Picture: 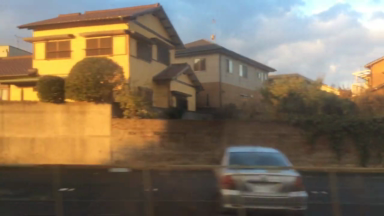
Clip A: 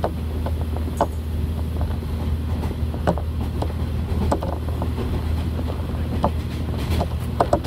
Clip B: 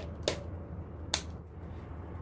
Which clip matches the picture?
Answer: A